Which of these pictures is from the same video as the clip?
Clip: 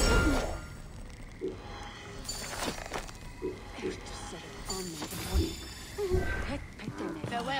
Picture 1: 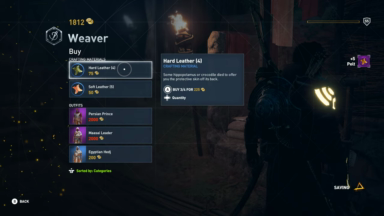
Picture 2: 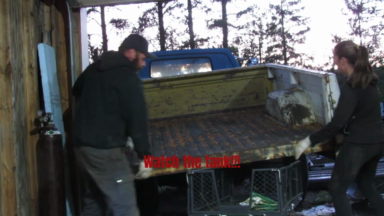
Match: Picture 1